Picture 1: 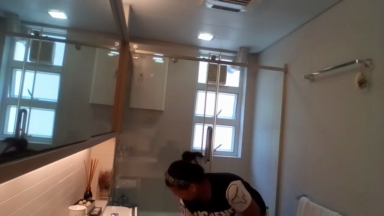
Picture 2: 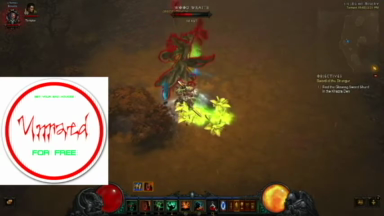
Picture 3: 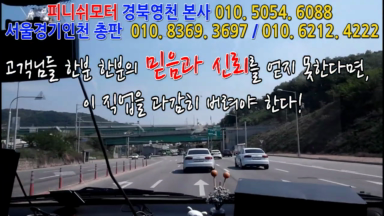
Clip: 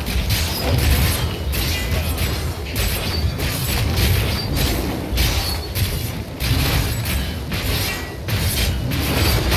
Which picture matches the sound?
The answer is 2